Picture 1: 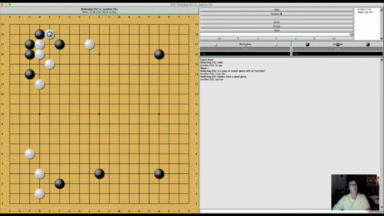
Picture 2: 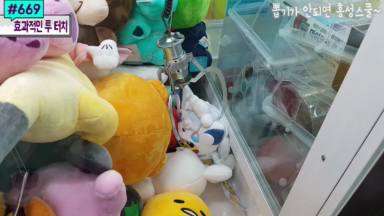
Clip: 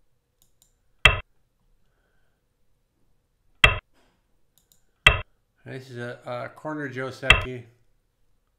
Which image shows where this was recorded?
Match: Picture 1